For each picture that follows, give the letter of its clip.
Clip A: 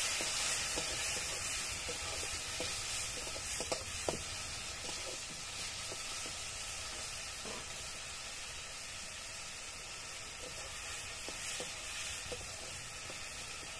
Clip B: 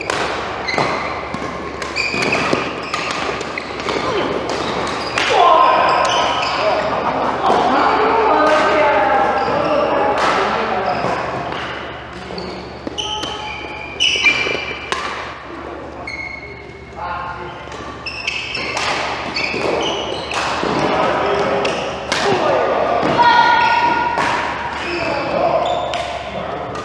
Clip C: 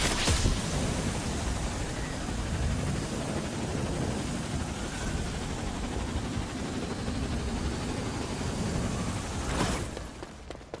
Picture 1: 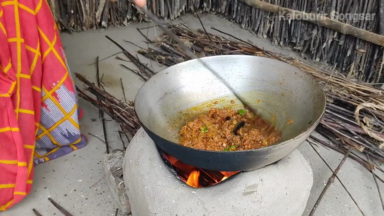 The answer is A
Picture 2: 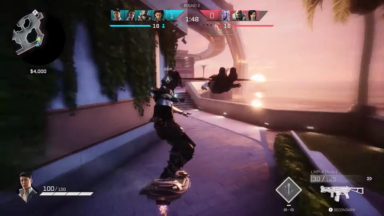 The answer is C